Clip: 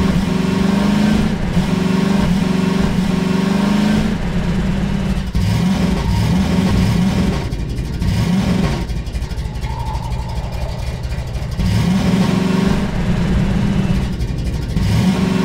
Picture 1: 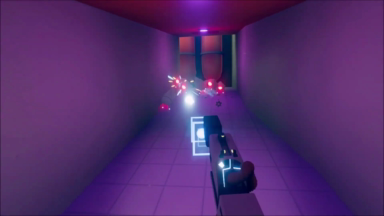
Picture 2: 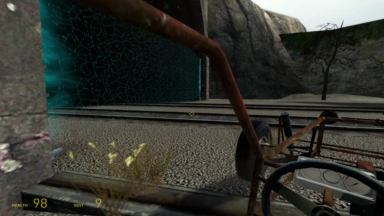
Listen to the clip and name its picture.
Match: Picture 2